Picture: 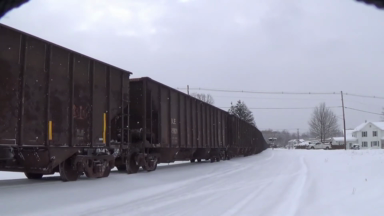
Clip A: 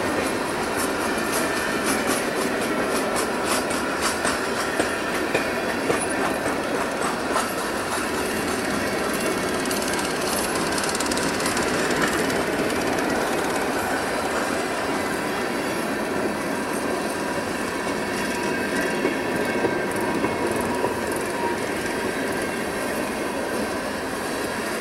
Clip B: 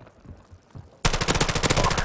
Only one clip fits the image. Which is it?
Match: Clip A